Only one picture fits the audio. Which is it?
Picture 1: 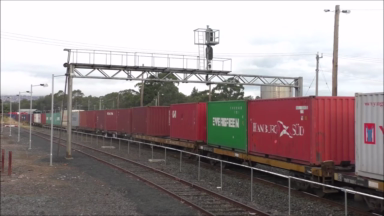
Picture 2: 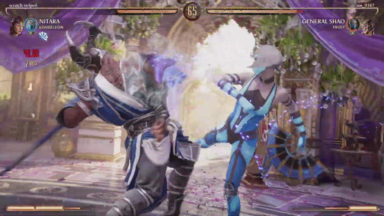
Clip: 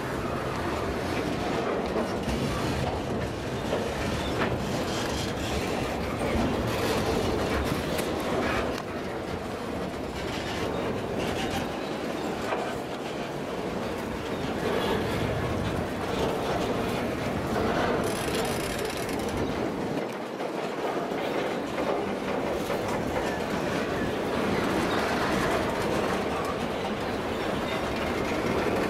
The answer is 1